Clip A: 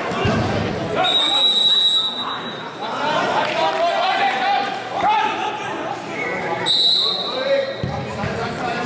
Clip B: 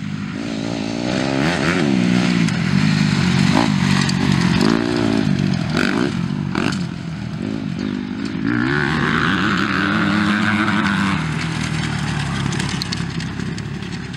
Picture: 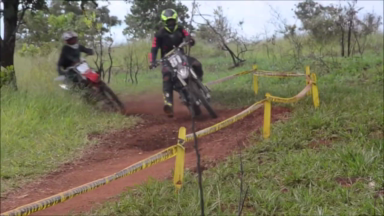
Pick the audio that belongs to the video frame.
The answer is B